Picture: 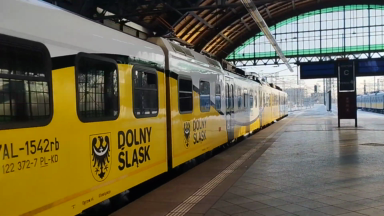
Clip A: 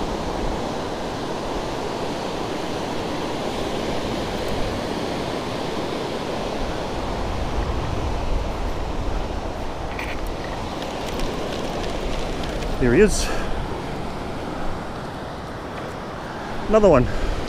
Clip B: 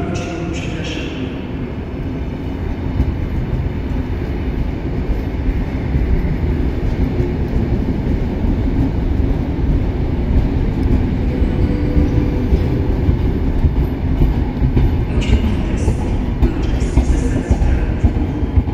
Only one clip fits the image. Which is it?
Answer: B